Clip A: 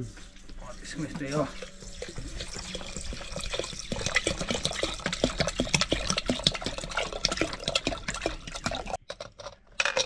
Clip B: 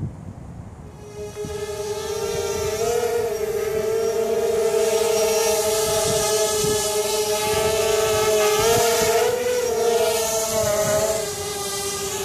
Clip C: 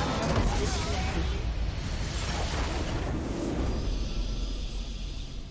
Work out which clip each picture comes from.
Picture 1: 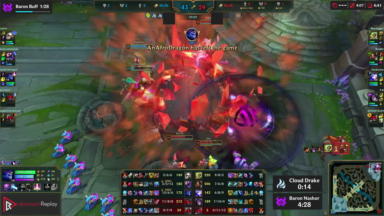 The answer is C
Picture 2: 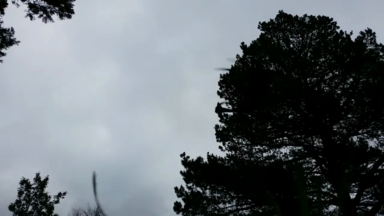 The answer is B